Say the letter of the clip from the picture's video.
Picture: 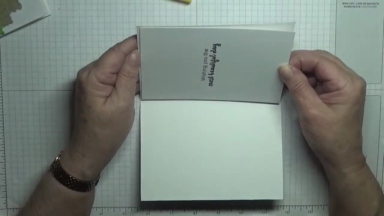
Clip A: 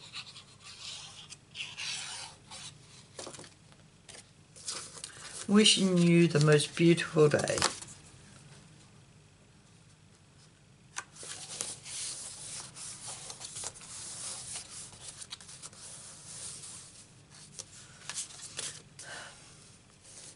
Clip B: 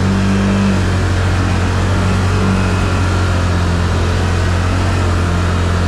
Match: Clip A